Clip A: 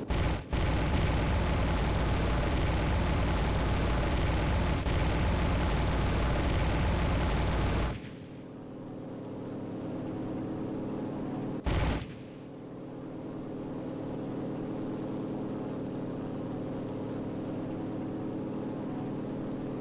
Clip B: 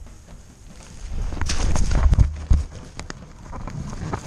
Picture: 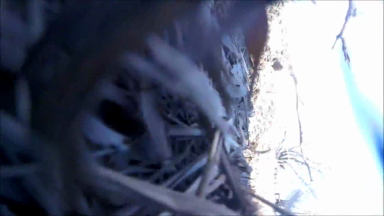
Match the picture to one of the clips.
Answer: B